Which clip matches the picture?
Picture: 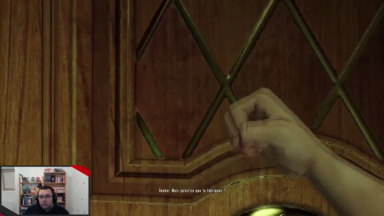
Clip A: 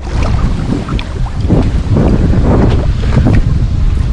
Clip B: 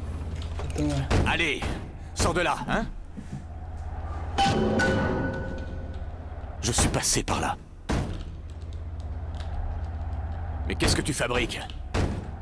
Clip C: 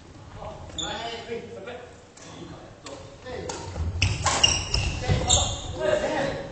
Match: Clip B